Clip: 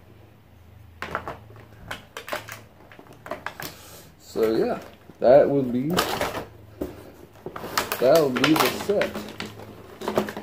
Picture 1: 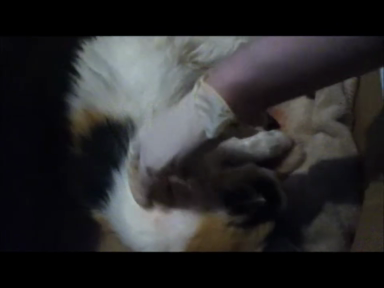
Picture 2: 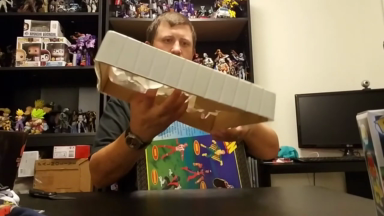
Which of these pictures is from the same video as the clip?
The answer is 2